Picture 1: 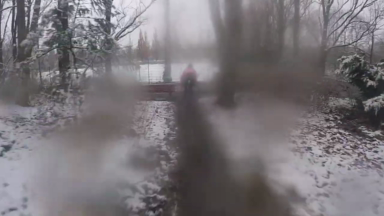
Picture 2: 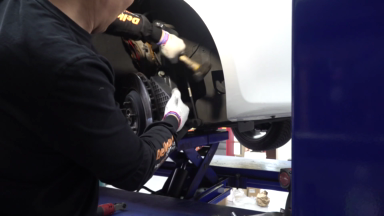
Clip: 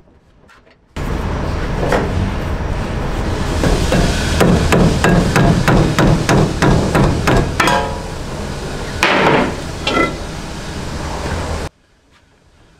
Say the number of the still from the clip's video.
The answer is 2